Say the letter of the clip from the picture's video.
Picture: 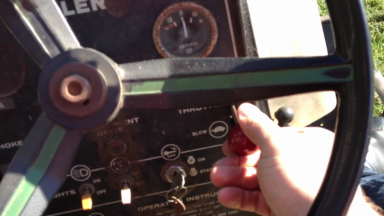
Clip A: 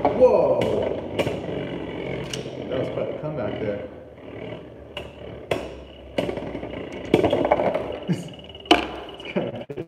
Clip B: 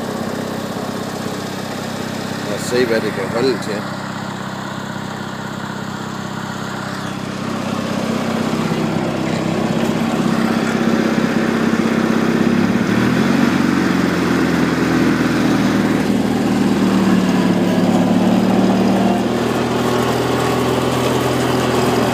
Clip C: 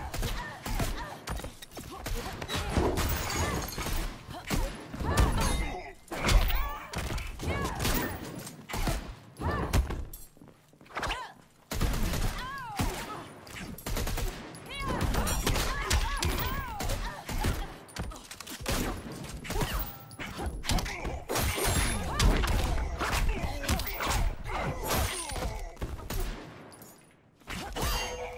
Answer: B